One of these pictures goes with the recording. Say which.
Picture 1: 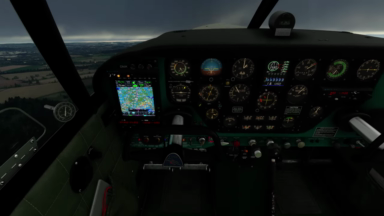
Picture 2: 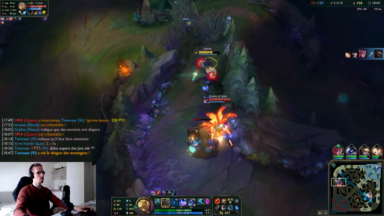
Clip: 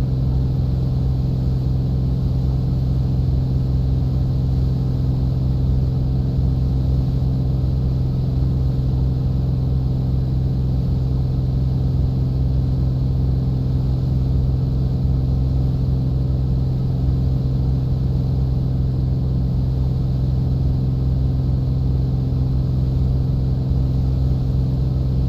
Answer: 1